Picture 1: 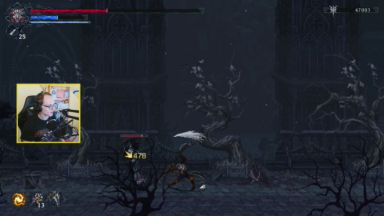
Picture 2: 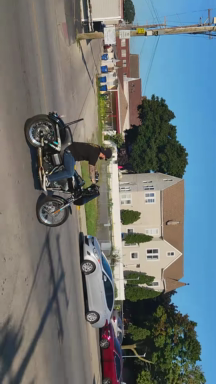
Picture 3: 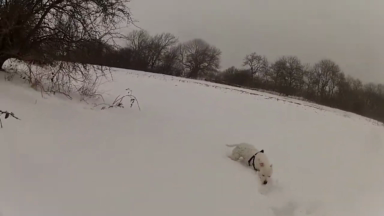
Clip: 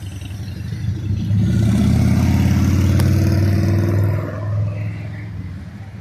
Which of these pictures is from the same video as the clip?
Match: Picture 2